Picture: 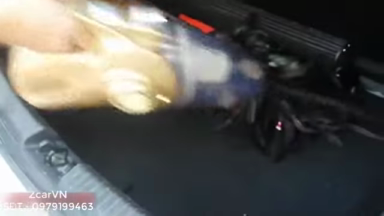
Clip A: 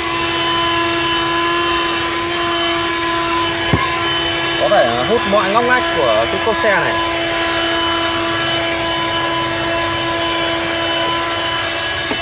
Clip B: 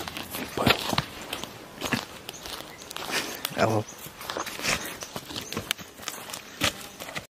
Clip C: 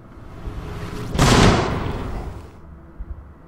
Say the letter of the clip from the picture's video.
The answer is A